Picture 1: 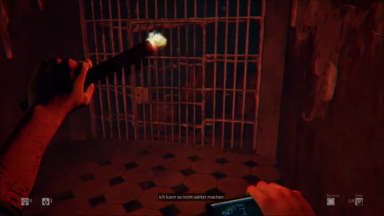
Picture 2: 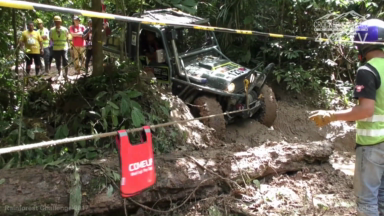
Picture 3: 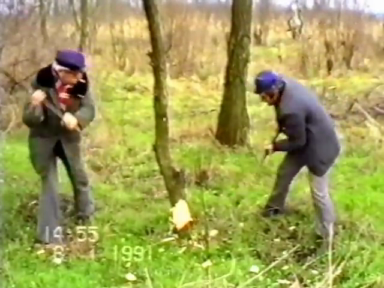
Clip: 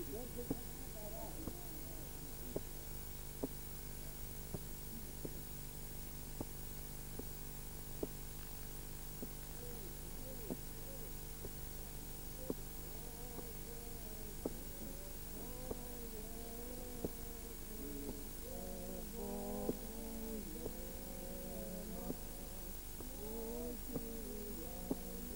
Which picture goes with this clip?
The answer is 3